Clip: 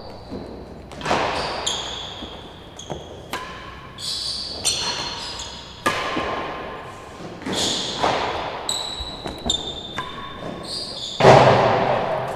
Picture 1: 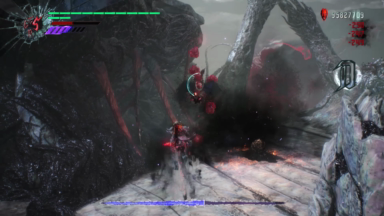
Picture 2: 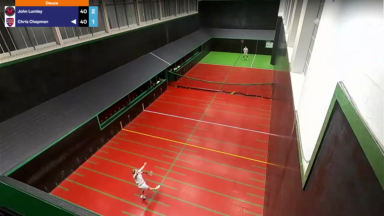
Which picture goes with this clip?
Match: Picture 2